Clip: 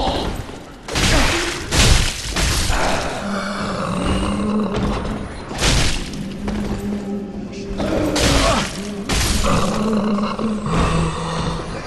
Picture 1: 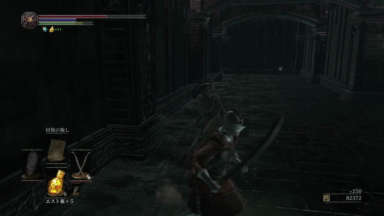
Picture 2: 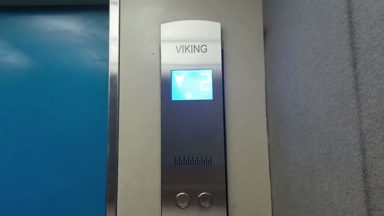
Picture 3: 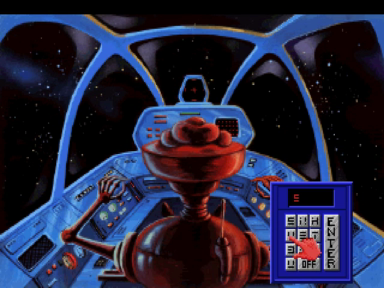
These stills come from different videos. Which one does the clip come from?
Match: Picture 1